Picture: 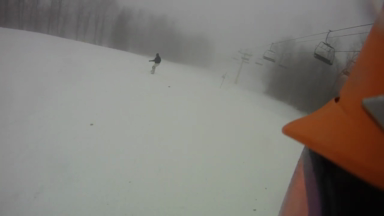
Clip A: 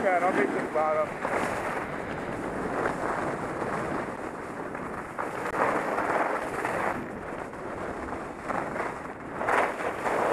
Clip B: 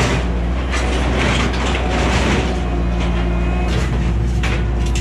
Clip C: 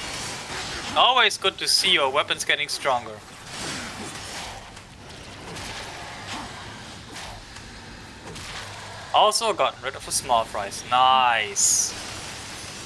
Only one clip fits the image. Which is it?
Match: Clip A